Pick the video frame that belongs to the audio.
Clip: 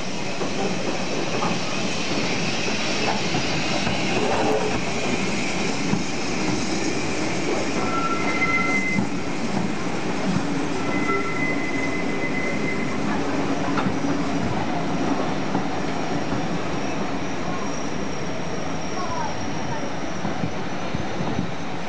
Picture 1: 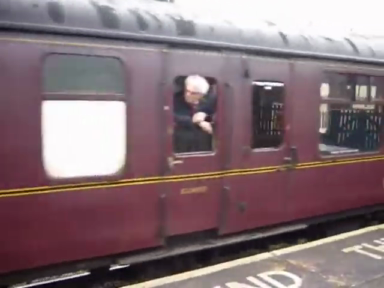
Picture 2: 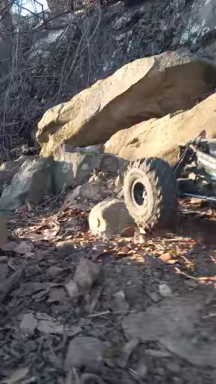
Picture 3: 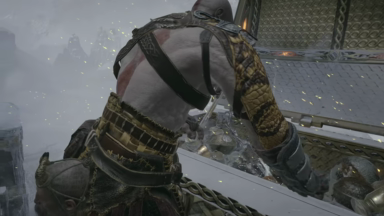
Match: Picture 1